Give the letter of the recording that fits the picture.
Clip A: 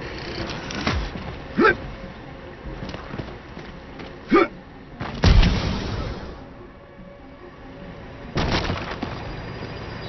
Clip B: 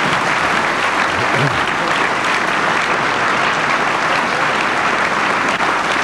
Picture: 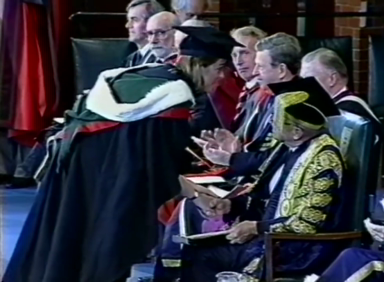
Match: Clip B